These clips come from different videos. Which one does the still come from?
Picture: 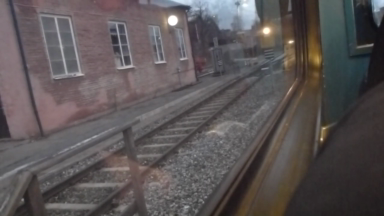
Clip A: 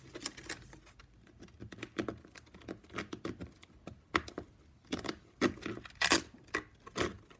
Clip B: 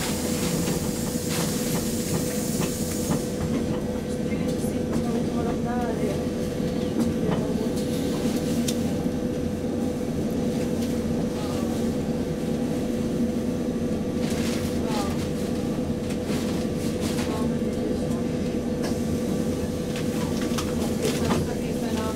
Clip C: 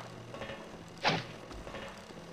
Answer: B